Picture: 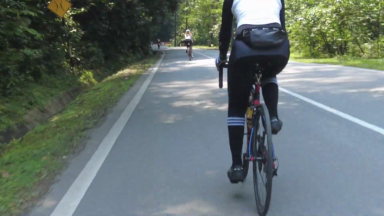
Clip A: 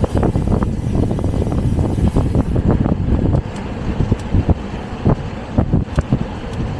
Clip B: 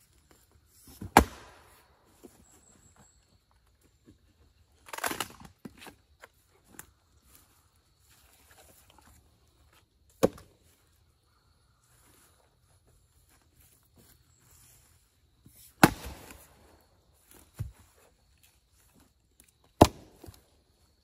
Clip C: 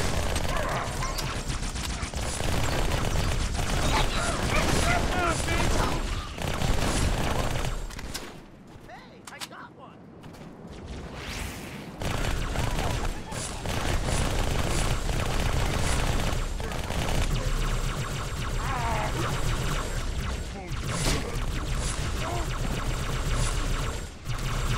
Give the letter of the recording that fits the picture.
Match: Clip A